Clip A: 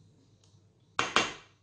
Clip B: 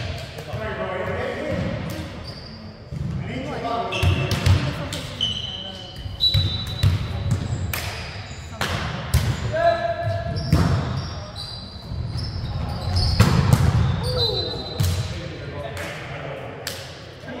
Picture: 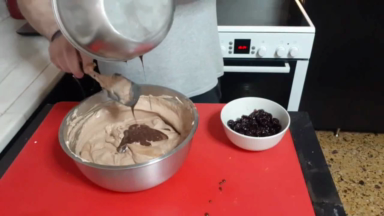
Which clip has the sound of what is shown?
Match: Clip A